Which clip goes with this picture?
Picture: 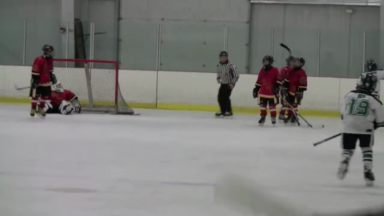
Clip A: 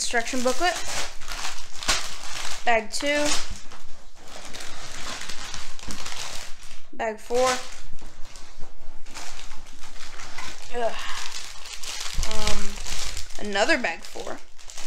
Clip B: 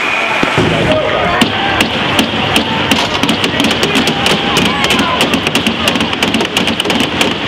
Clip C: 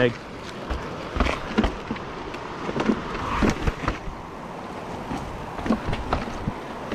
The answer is B